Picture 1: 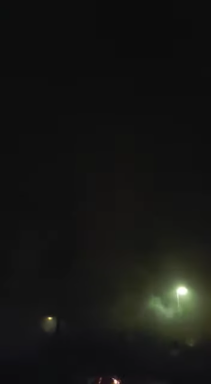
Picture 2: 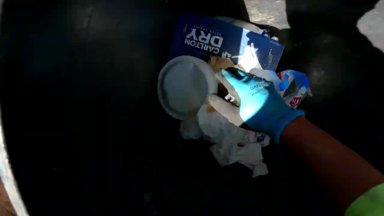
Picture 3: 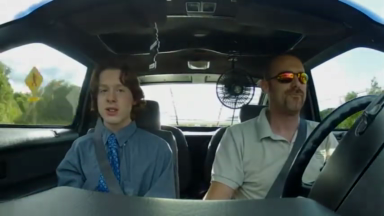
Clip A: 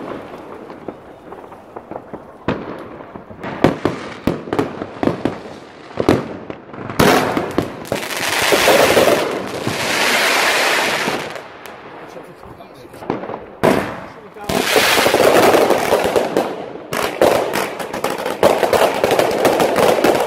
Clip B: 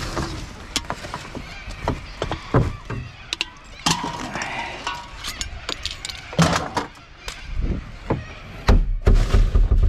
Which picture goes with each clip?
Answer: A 1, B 2